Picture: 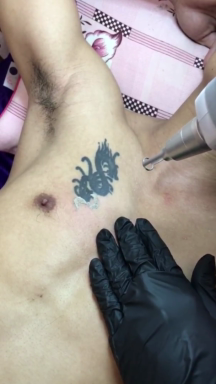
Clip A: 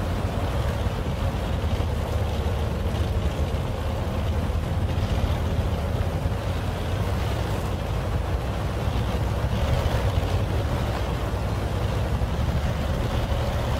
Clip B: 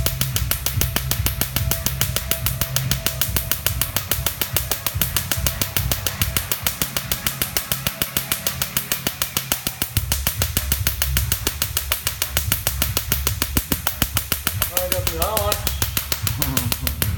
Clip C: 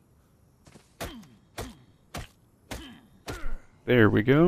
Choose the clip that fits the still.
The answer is B